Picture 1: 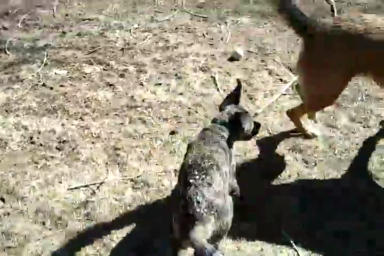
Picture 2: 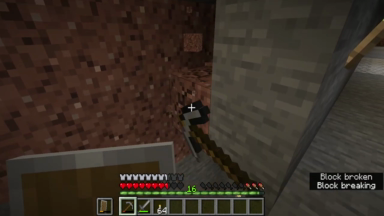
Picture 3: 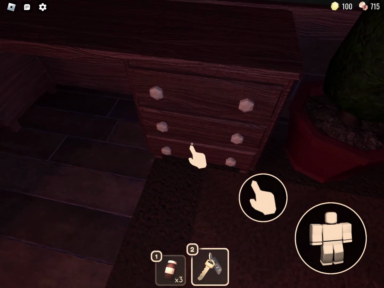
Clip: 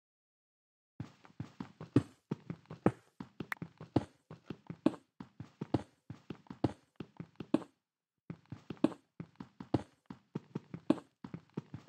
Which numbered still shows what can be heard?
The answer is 2